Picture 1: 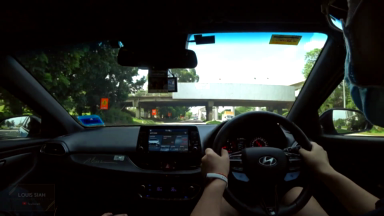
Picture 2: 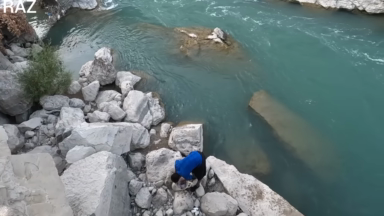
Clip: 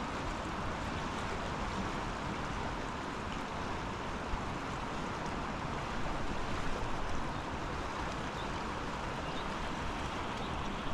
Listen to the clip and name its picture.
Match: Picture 2